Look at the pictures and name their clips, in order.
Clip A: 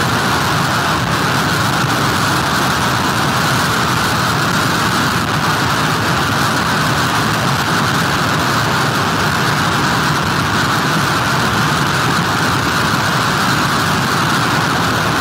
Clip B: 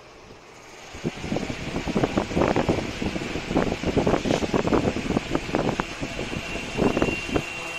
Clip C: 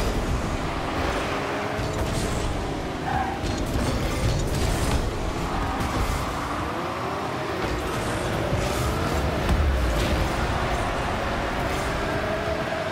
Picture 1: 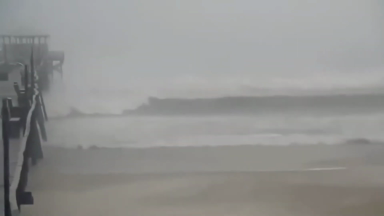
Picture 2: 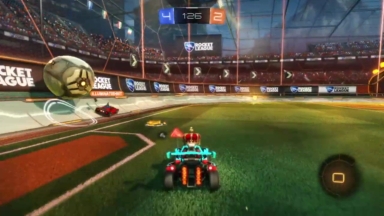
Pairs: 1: A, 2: C